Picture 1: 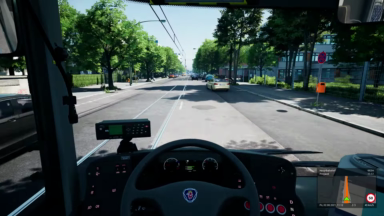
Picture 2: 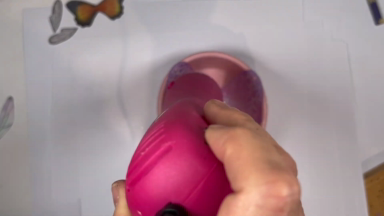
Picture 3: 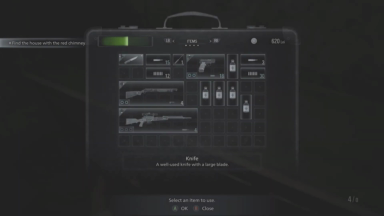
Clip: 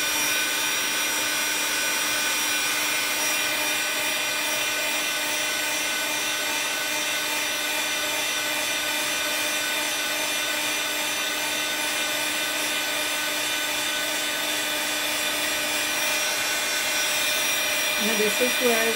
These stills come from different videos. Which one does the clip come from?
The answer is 2